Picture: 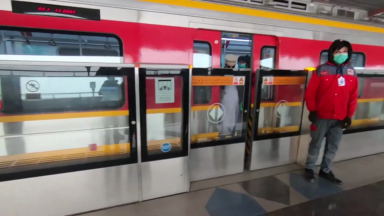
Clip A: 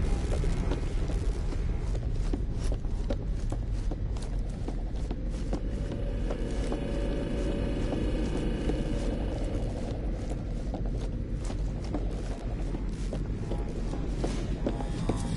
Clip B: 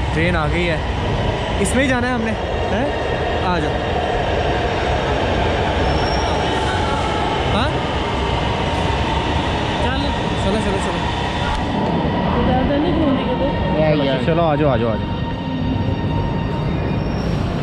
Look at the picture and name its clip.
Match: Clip B